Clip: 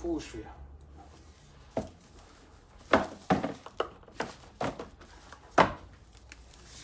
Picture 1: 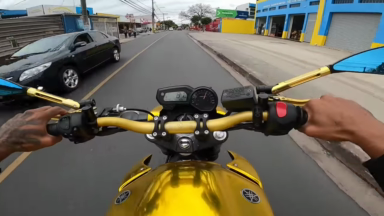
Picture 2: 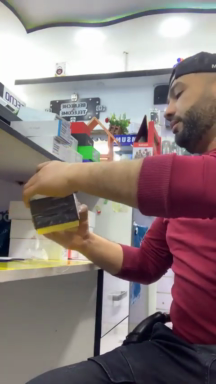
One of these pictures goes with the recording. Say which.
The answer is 2